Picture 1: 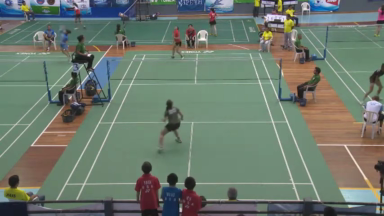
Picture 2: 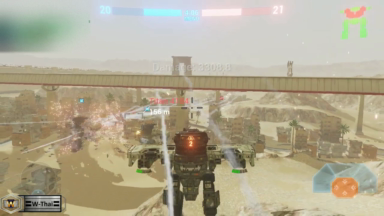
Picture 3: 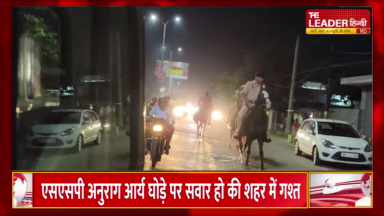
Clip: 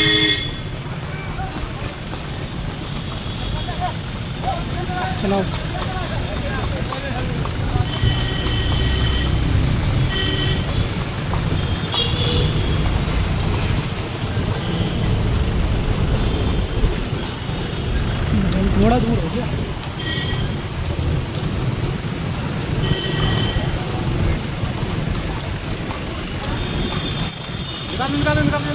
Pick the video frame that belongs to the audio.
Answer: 3